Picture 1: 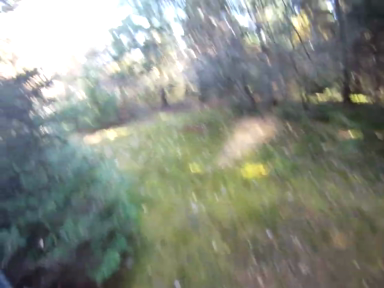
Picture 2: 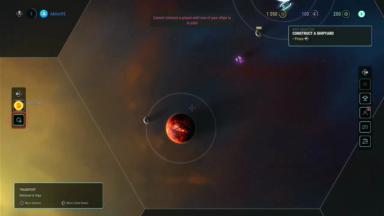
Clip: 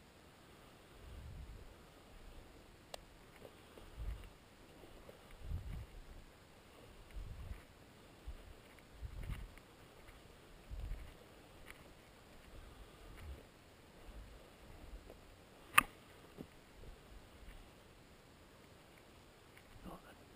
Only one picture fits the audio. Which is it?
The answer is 1